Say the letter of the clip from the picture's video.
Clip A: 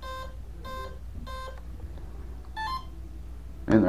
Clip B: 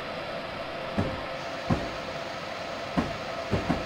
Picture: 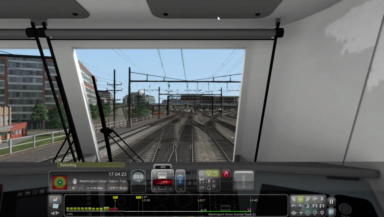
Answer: B